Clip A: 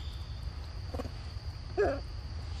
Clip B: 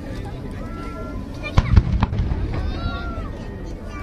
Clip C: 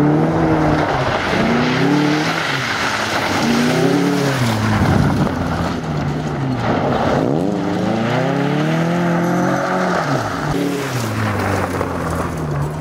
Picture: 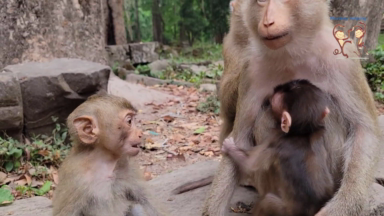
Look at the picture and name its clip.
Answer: A